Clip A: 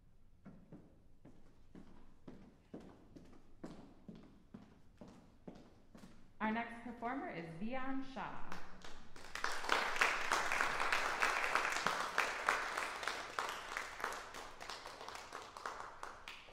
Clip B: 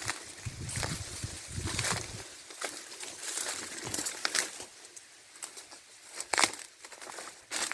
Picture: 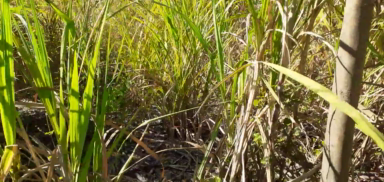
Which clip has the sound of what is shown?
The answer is B